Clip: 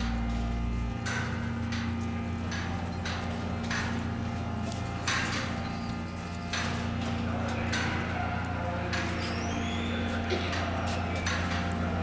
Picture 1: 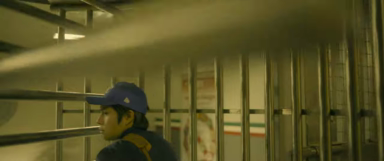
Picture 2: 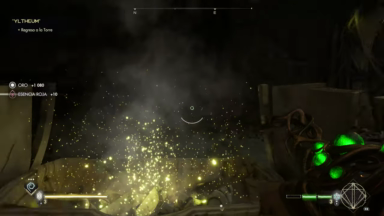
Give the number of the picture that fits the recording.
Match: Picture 1